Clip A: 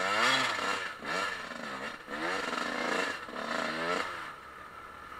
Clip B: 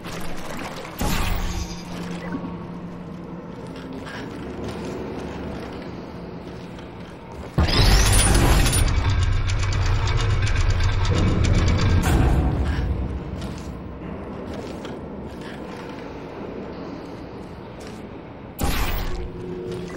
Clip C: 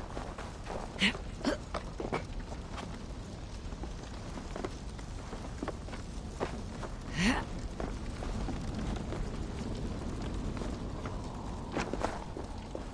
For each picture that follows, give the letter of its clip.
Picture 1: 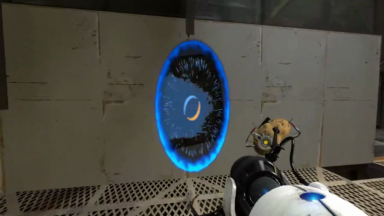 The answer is B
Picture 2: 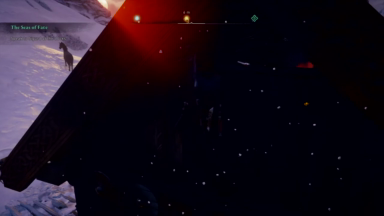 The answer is C